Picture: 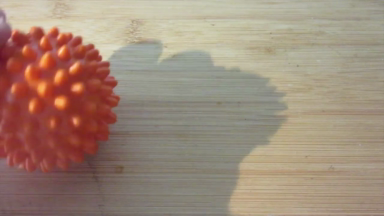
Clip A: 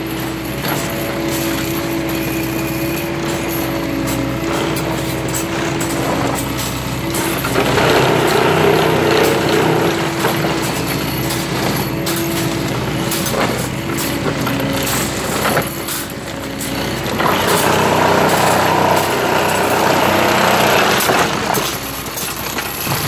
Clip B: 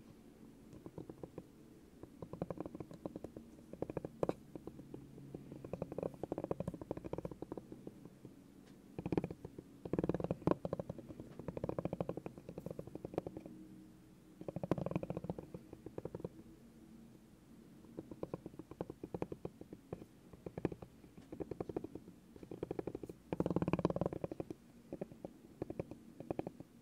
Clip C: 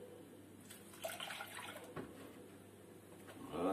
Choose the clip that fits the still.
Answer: B